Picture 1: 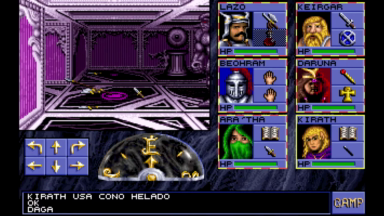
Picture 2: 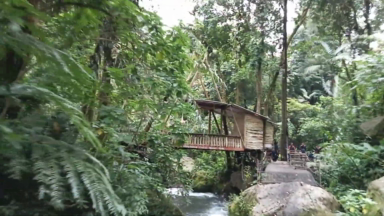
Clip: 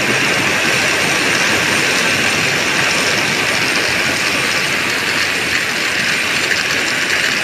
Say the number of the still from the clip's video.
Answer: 2